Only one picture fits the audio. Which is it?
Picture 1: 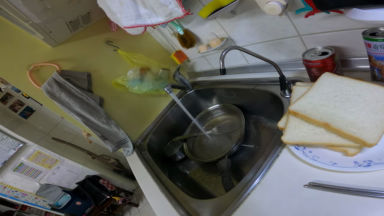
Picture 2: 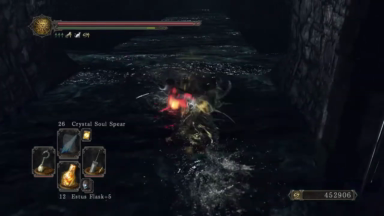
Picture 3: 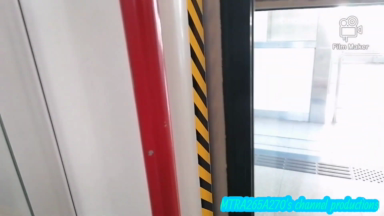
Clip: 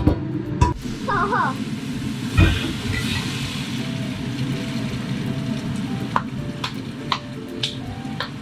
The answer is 1